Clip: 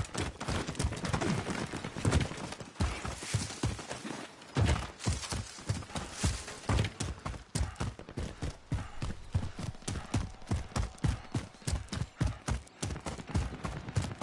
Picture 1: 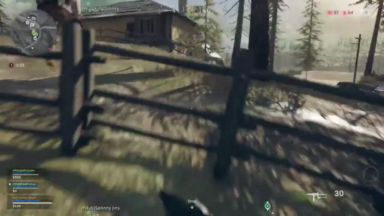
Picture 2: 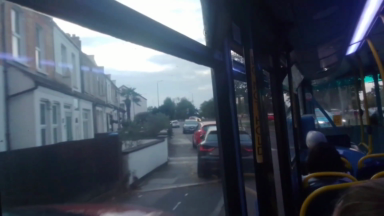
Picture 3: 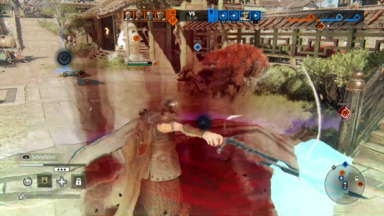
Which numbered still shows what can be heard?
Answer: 1